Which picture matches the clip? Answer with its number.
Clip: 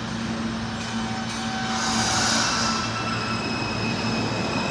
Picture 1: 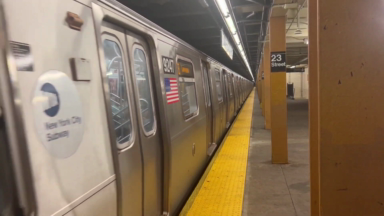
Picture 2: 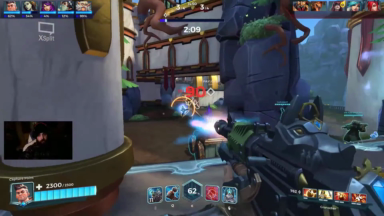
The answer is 1